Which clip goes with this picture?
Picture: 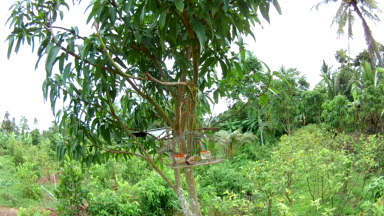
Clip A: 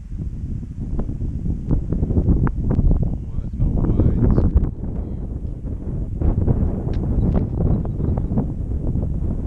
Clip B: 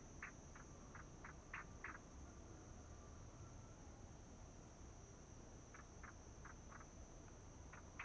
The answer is B